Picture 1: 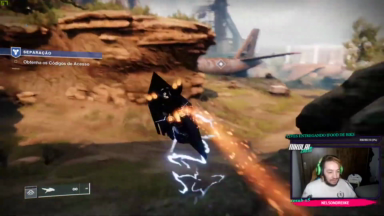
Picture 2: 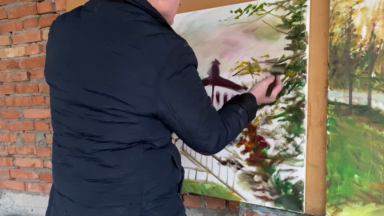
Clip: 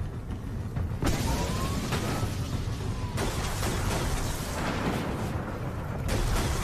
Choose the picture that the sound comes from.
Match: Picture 1